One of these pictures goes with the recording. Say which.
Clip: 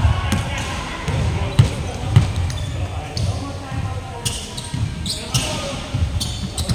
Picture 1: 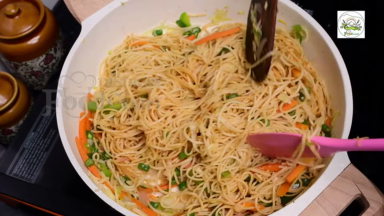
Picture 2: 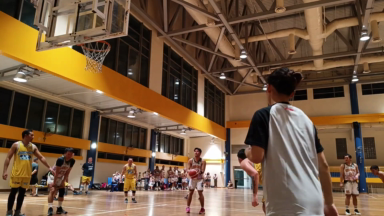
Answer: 2